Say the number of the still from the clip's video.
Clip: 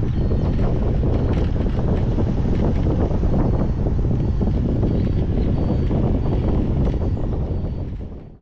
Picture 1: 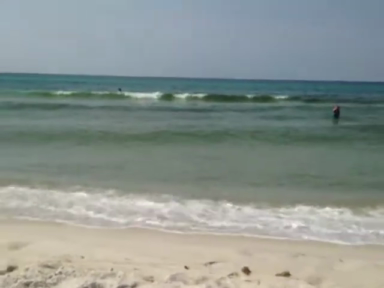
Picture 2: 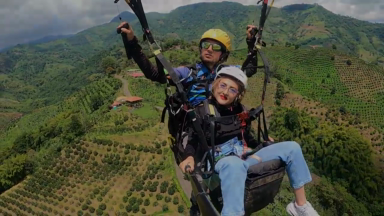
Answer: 2